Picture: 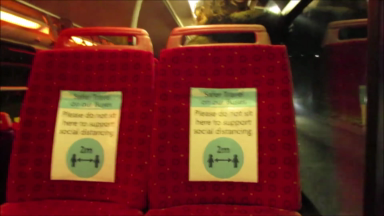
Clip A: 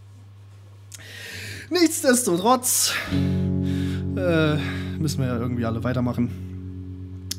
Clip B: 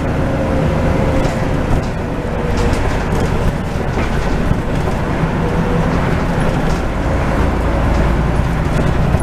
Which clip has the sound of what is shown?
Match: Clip B